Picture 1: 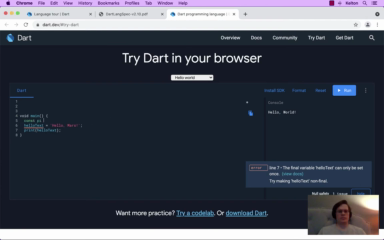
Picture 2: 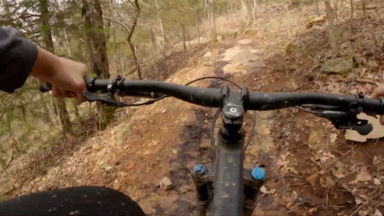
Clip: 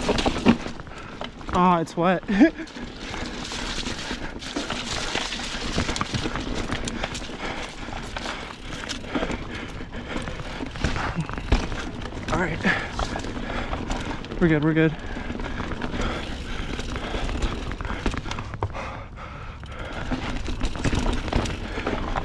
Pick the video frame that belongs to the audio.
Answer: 2